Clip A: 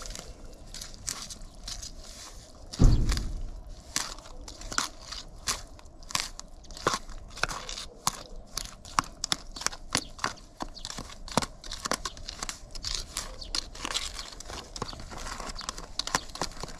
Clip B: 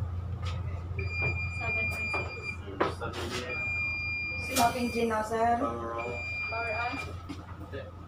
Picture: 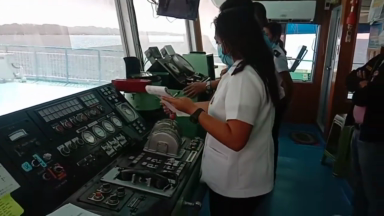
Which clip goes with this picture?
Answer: B